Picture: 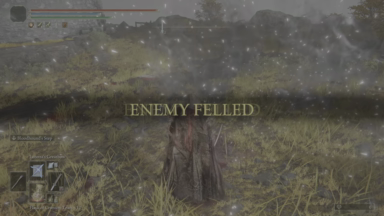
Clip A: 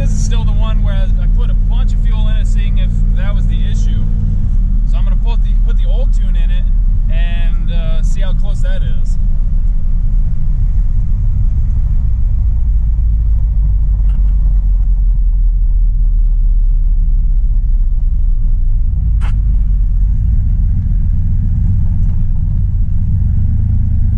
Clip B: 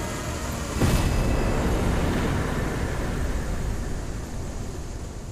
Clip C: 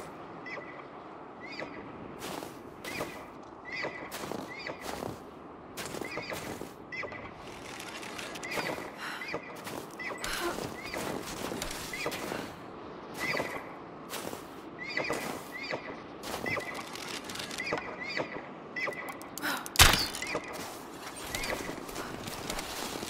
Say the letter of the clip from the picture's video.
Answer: B